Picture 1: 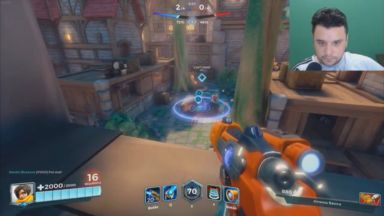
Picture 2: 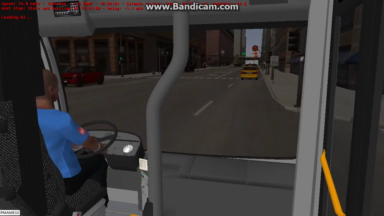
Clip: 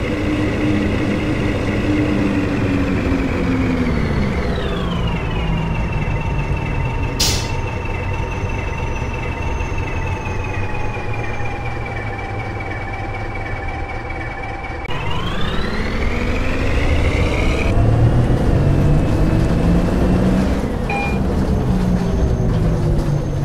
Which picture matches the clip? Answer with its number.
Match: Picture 2